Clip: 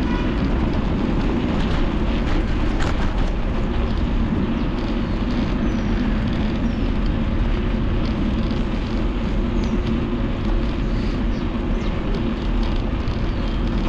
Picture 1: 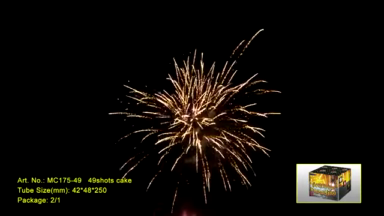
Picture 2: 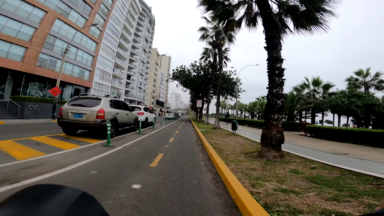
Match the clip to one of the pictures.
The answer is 2